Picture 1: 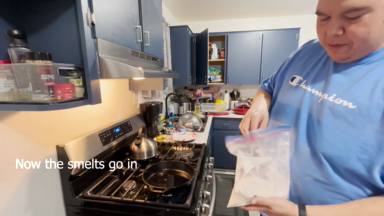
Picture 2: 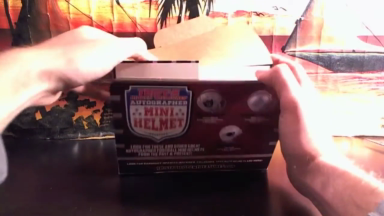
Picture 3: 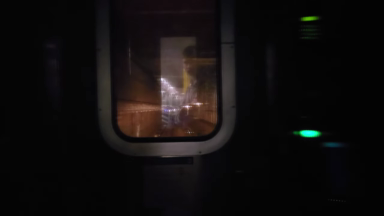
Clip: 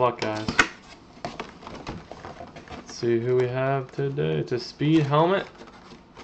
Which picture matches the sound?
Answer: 2